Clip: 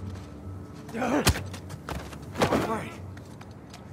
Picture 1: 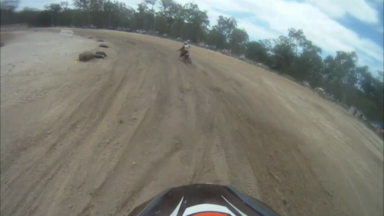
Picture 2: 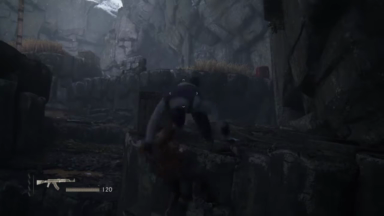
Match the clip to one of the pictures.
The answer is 2